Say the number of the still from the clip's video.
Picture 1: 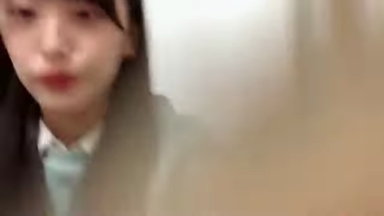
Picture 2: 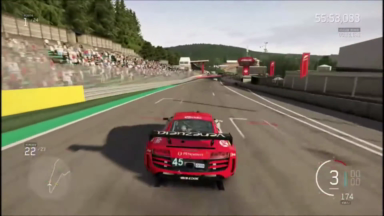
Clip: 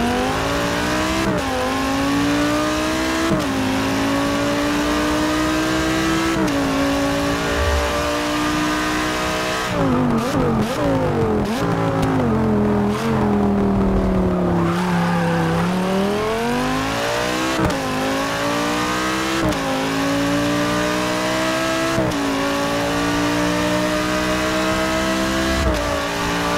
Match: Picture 2